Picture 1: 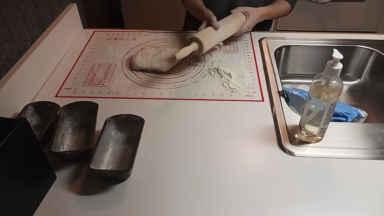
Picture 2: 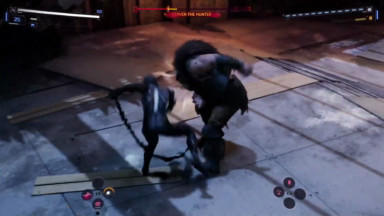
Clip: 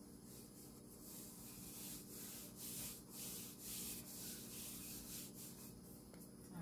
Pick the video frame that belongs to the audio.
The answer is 1